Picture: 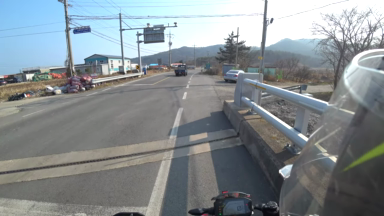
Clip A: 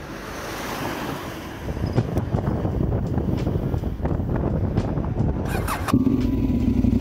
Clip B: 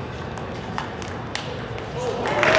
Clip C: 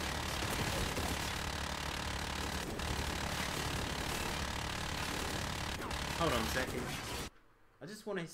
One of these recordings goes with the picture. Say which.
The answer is A